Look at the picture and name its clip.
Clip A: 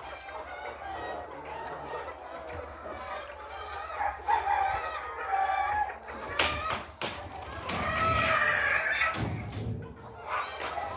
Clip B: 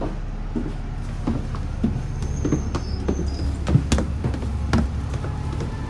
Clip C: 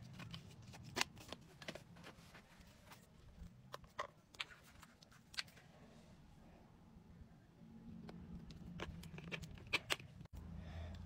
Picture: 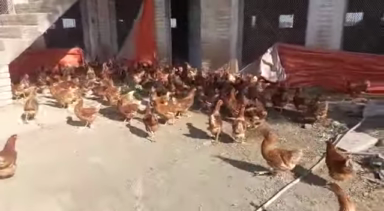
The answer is A